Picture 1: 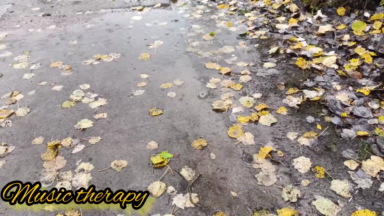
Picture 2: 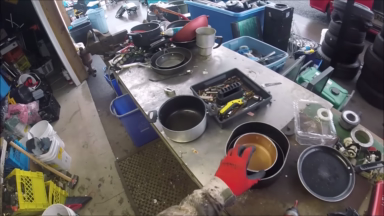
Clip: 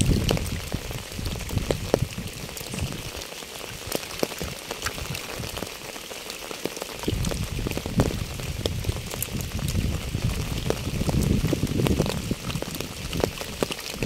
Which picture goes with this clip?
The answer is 1